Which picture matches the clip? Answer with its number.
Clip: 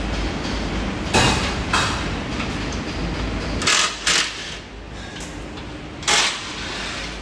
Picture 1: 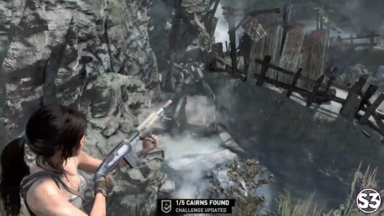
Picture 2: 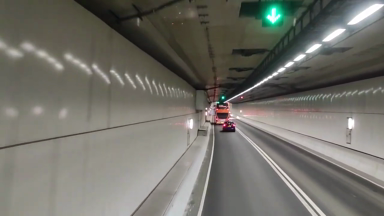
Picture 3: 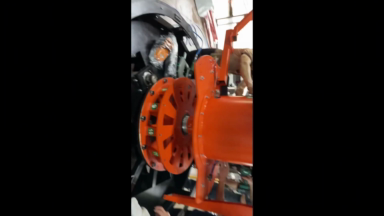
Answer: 3